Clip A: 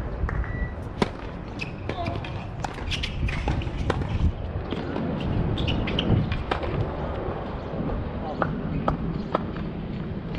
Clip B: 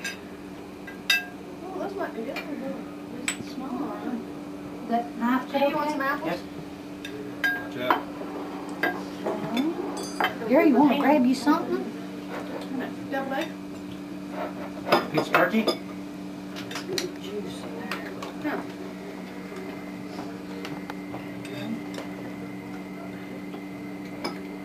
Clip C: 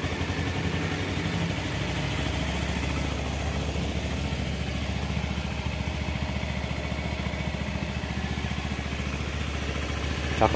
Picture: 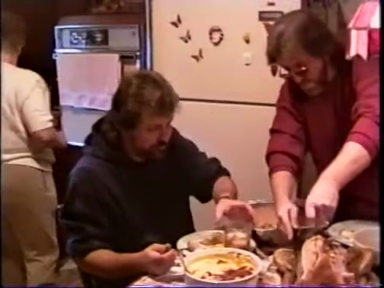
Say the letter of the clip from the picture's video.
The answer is B